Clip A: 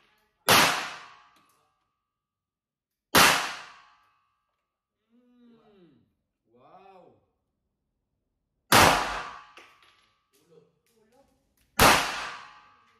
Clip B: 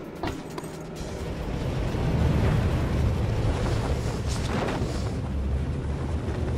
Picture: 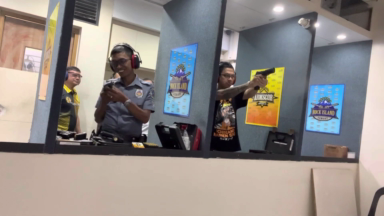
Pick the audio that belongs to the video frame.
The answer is A